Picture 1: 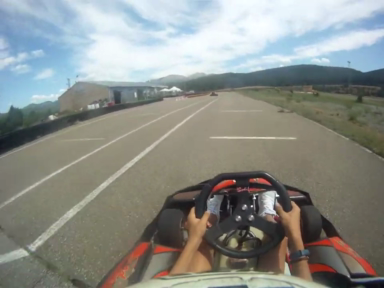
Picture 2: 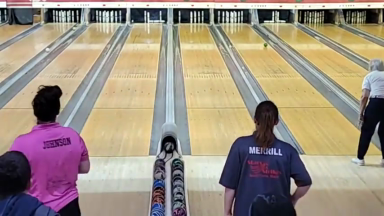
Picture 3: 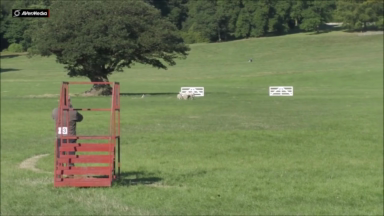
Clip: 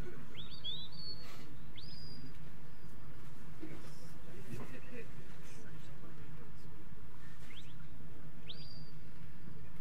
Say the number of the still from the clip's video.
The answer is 3